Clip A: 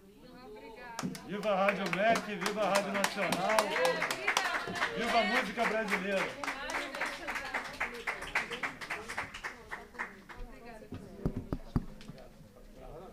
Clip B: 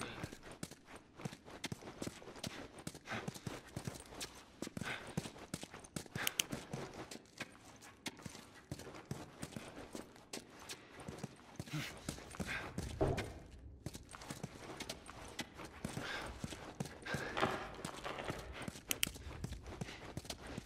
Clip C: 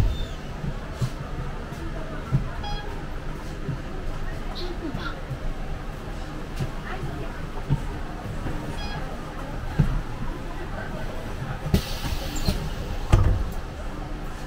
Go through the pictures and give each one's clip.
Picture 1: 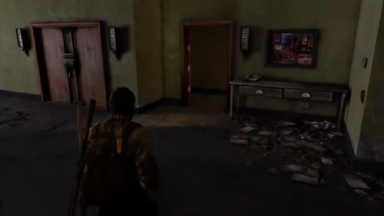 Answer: B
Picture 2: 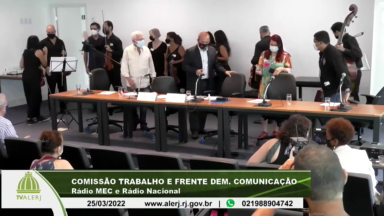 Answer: A